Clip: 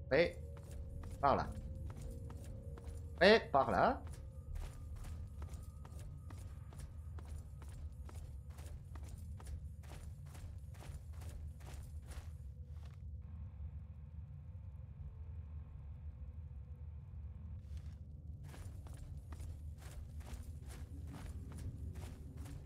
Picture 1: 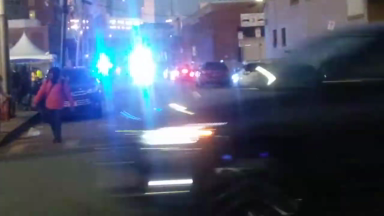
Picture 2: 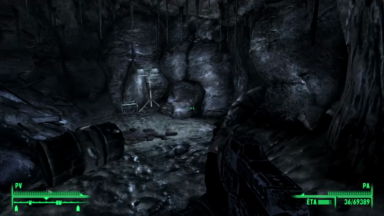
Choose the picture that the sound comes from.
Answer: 2